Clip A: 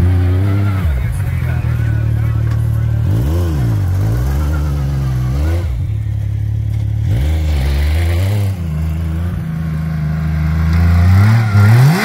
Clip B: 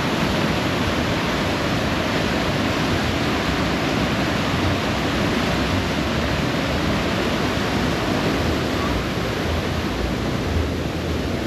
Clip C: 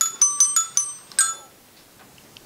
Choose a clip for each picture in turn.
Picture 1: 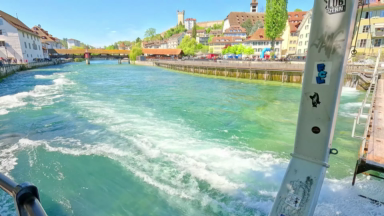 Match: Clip B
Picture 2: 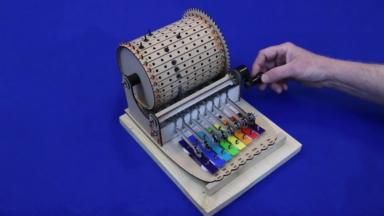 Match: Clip C